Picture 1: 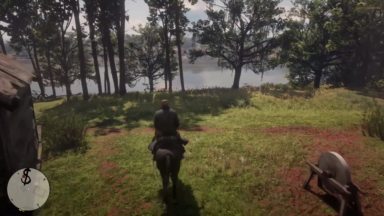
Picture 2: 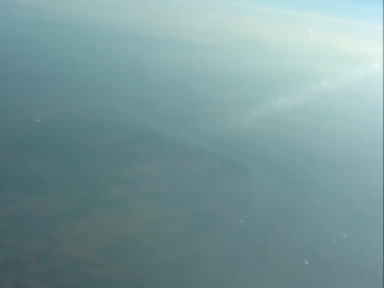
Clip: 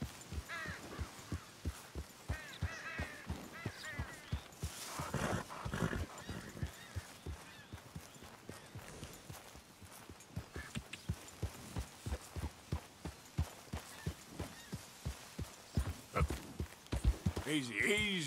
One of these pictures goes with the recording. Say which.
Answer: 1